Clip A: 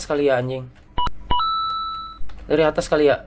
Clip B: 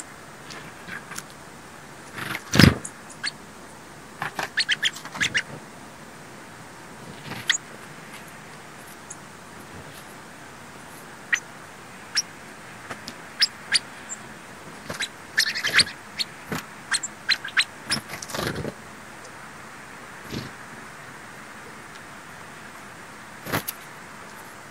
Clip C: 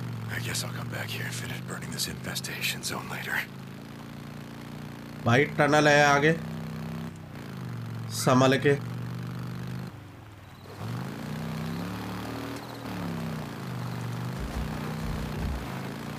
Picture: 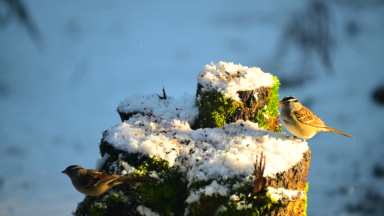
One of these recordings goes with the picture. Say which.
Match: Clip B